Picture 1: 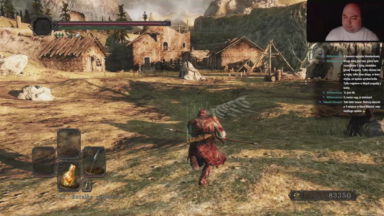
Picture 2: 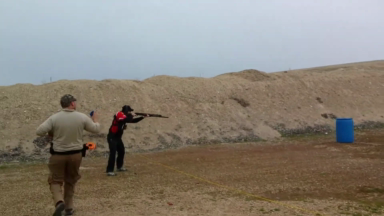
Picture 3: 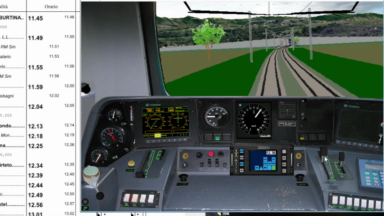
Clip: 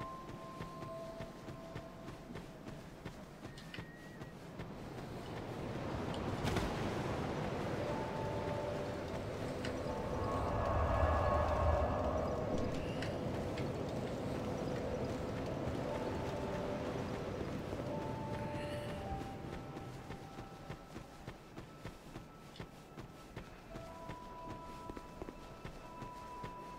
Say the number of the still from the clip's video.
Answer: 1